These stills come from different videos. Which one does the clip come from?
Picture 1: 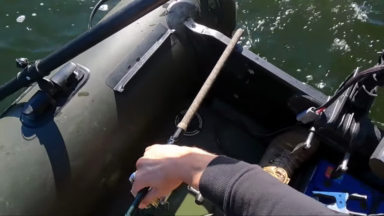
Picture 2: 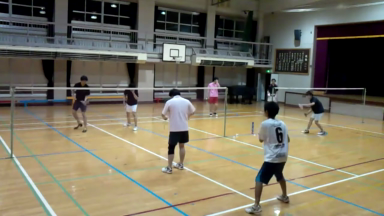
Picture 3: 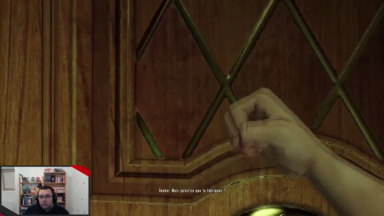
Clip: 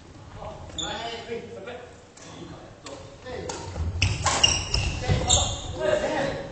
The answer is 2